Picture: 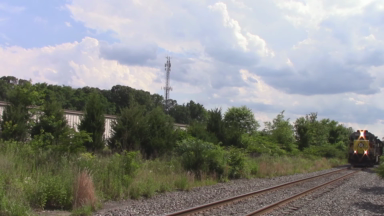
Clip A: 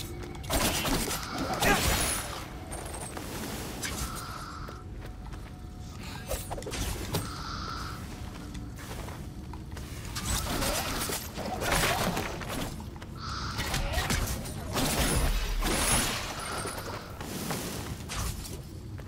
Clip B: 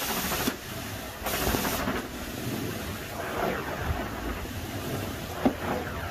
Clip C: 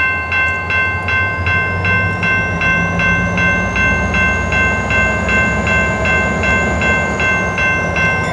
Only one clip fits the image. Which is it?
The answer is C